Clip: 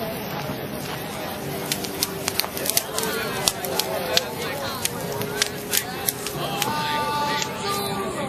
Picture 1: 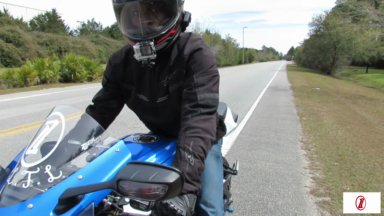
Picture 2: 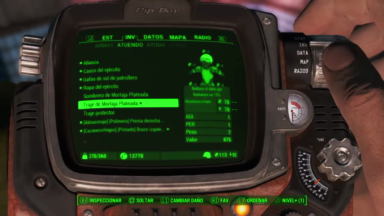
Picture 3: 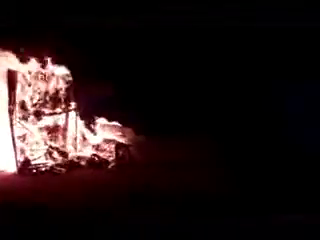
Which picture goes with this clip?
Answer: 3